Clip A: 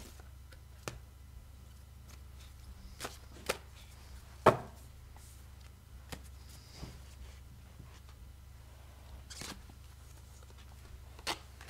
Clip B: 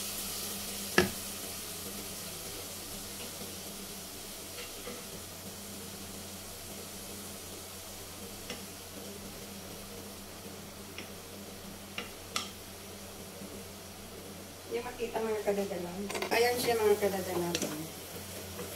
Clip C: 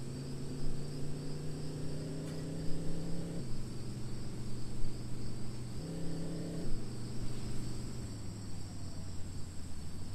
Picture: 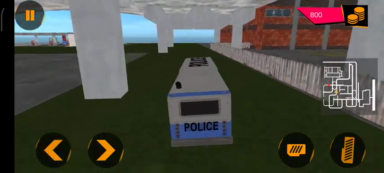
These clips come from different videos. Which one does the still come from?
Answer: C